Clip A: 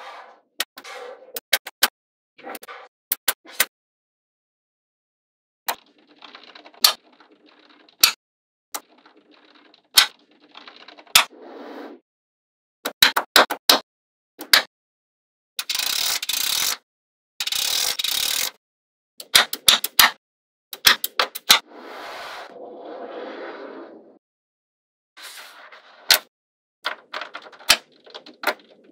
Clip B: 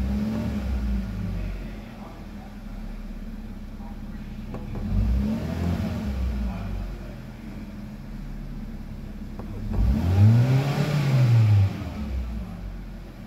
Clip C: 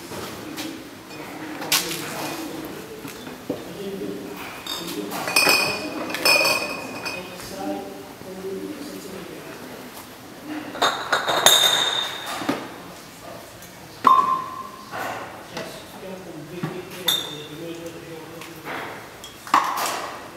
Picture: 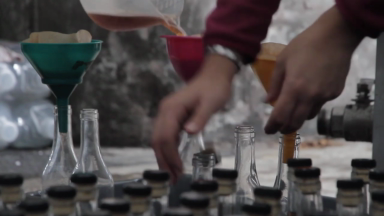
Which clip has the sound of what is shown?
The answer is C